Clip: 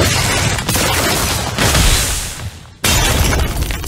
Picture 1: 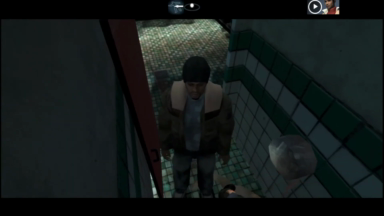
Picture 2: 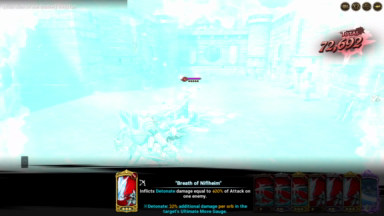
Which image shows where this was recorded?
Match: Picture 2